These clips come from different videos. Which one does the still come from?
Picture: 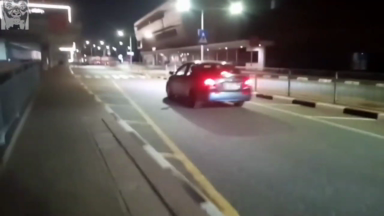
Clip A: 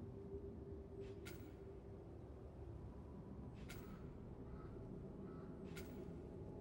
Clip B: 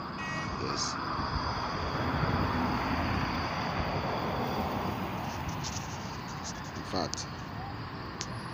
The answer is B